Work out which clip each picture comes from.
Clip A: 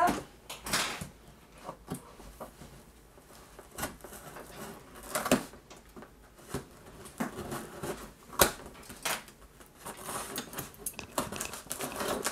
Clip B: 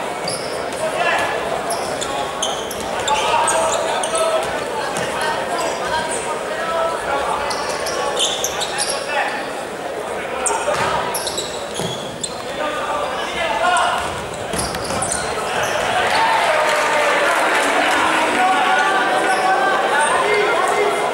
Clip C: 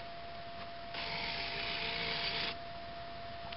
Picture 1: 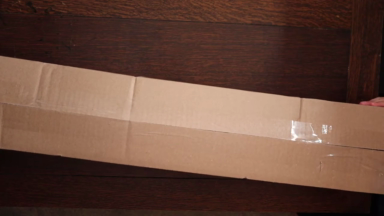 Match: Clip A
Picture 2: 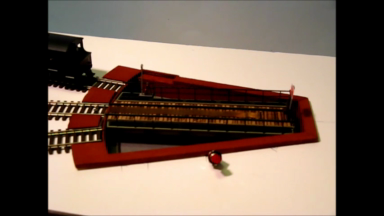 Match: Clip C